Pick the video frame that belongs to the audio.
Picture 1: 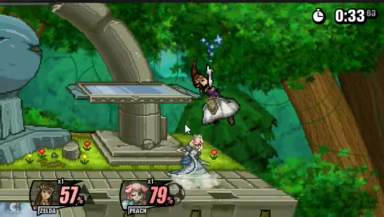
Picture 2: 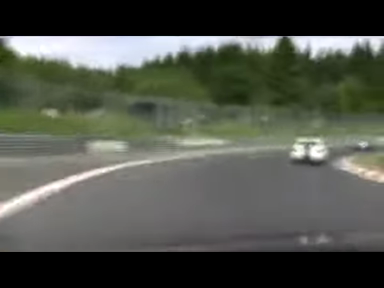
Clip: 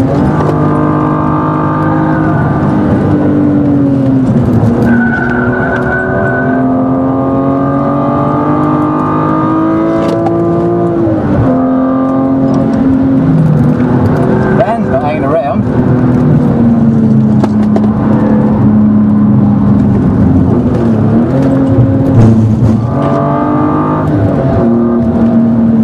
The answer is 2